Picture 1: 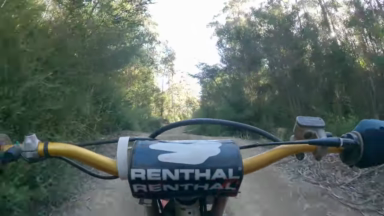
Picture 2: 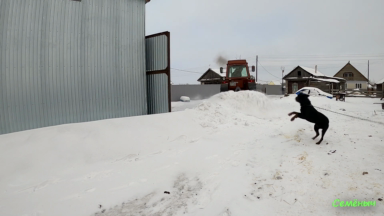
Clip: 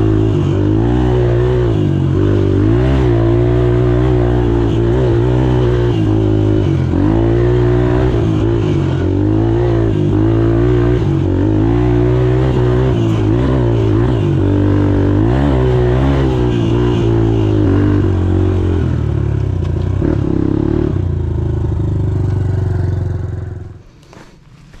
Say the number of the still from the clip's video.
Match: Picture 1